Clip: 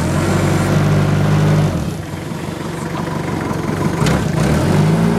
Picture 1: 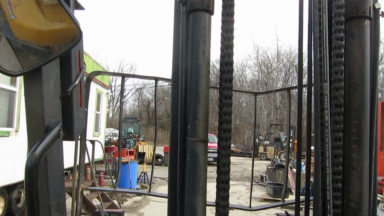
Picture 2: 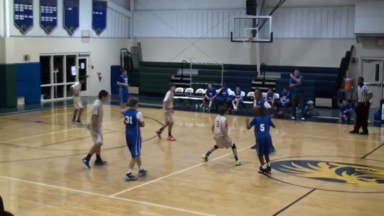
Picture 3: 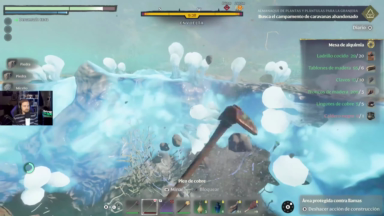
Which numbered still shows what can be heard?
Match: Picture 1